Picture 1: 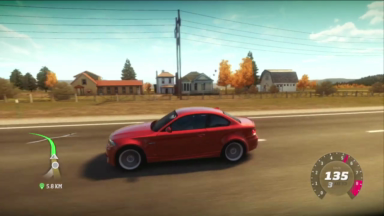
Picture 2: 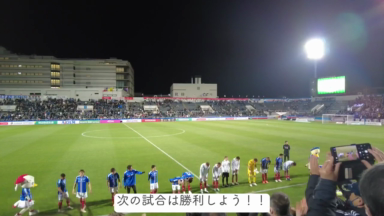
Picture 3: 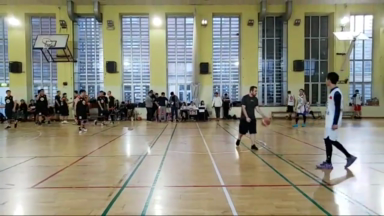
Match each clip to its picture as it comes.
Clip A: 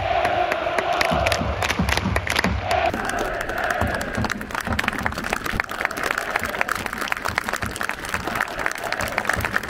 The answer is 2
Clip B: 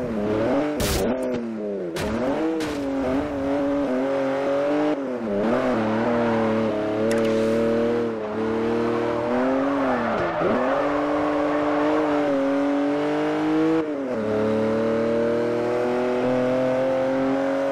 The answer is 1